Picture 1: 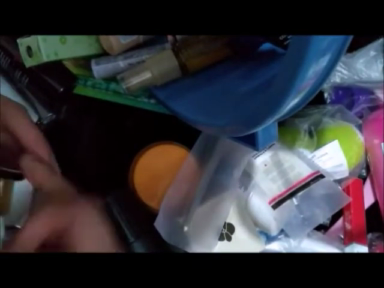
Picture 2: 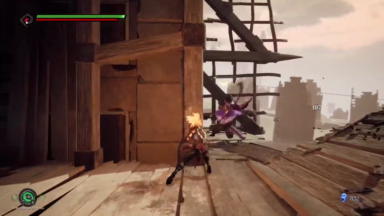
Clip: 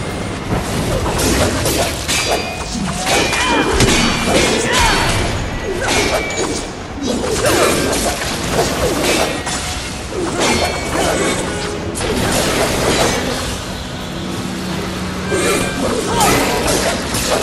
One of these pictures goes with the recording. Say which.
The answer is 2